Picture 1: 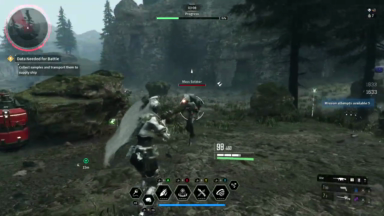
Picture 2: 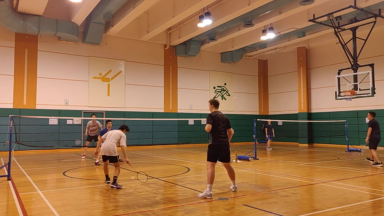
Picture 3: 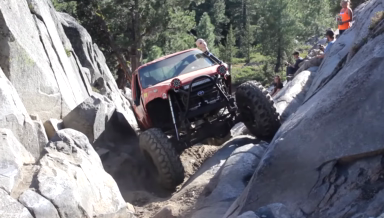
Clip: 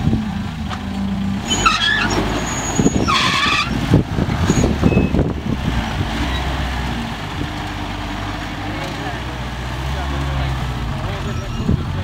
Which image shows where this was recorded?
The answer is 3